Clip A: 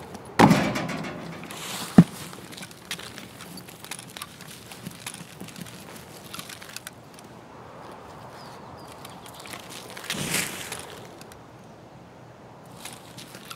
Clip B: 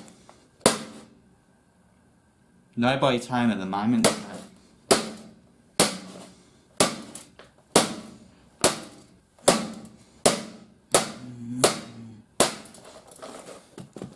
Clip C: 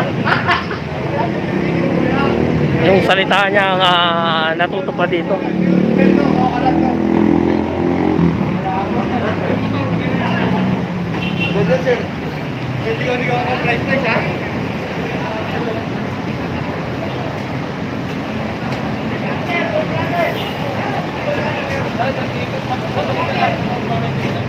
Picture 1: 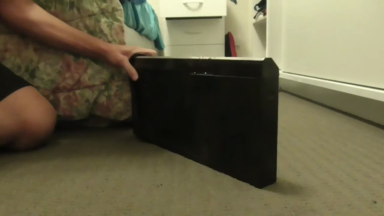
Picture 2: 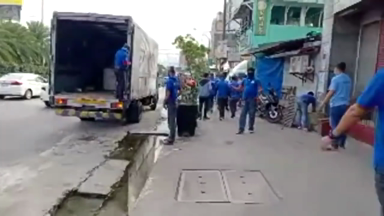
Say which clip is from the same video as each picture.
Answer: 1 B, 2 C